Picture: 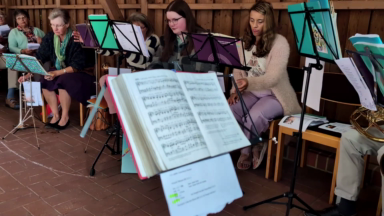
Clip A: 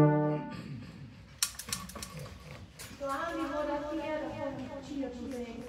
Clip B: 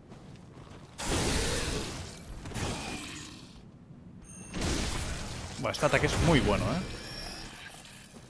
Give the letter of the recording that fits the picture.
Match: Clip A